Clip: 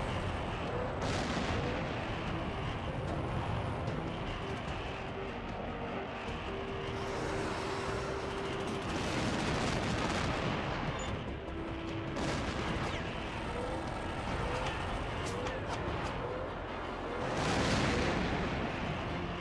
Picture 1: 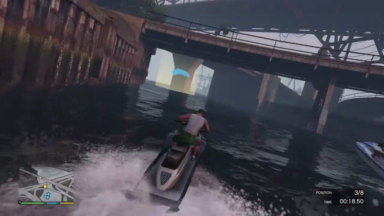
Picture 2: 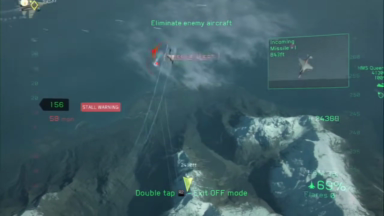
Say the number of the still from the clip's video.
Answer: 2